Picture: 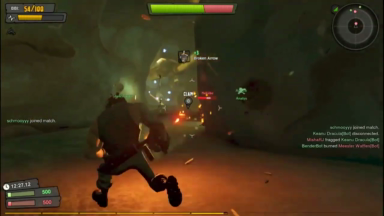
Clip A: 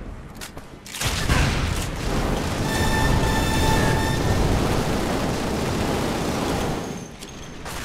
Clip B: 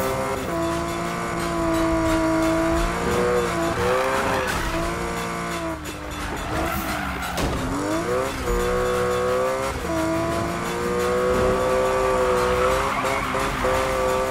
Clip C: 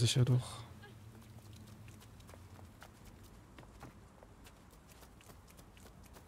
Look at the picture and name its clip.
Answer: A